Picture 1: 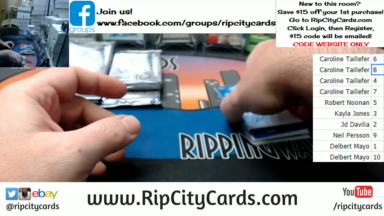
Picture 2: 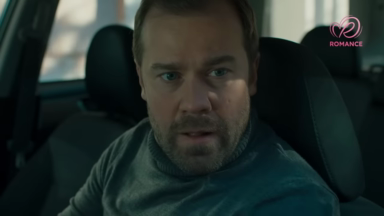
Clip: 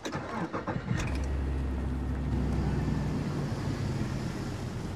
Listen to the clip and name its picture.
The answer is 2